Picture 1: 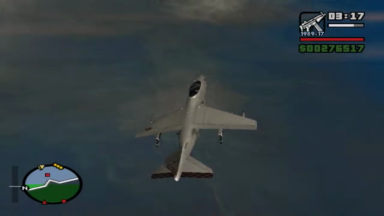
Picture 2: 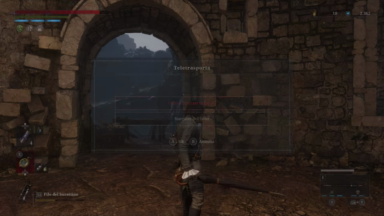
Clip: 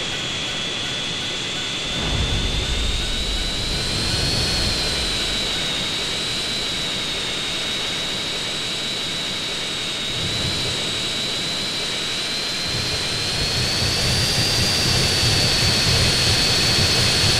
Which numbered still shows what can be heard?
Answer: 1